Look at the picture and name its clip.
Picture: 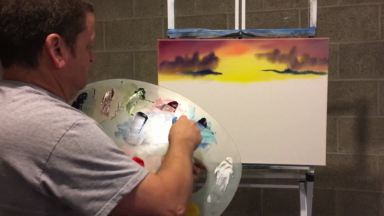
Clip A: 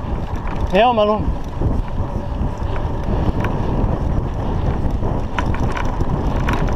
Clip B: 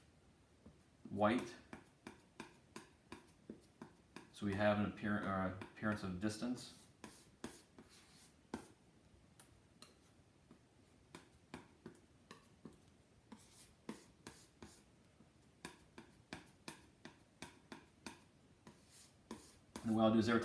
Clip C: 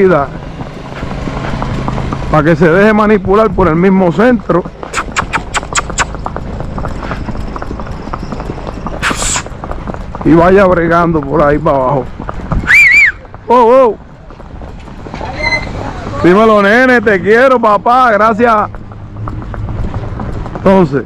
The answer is B